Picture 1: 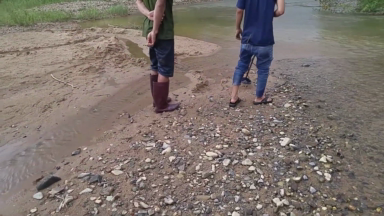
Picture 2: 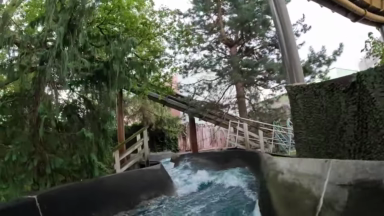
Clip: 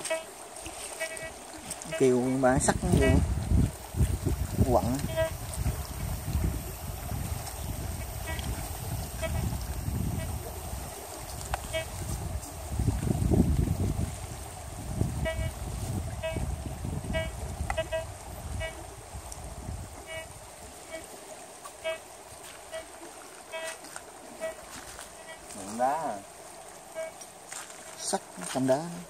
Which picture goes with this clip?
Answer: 1